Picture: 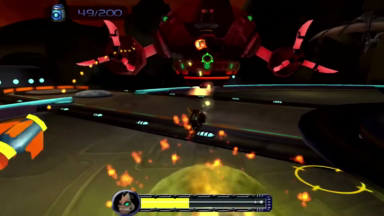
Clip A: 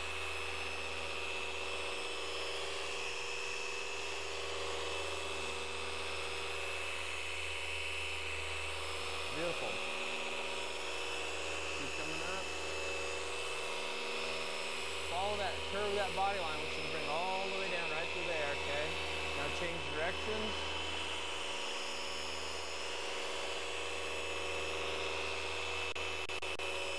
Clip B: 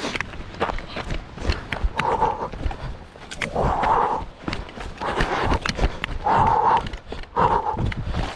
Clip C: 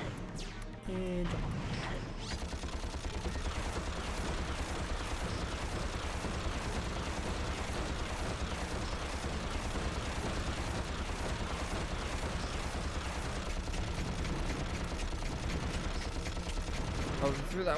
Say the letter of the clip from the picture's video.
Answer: C